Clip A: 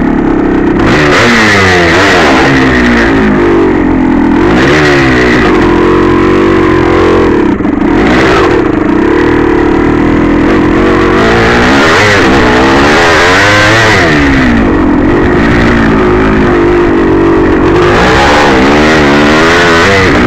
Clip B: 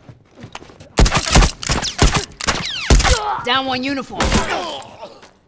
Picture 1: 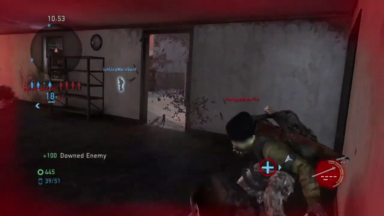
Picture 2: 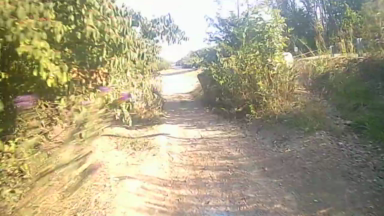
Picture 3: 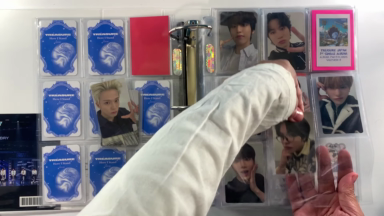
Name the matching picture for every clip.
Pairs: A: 2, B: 1